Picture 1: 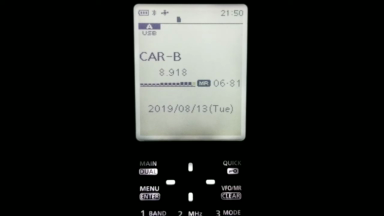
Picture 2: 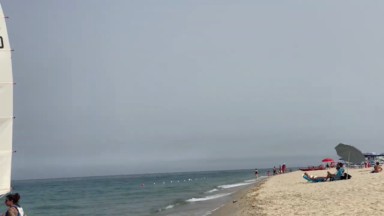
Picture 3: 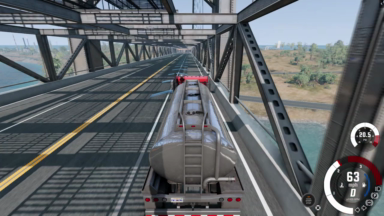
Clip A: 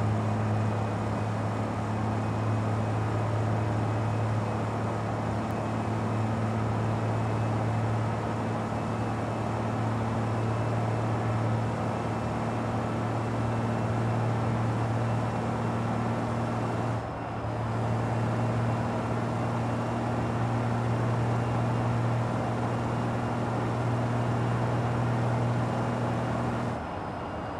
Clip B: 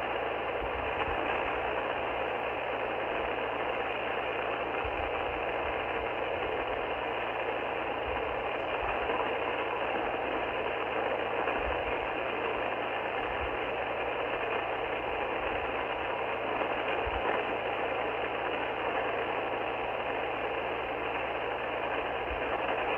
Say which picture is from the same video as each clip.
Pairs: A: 3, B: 1